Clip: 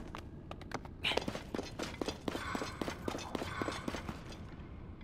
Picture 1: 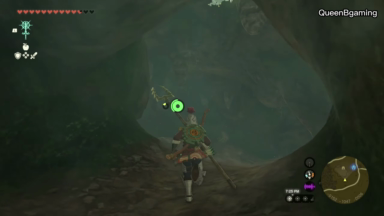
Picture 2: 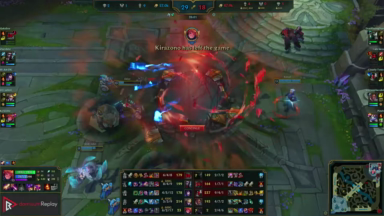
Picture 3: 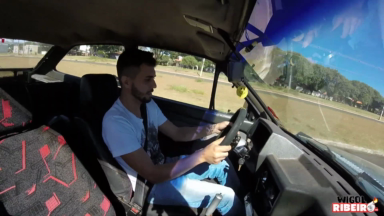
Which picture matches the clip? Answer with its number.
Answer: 1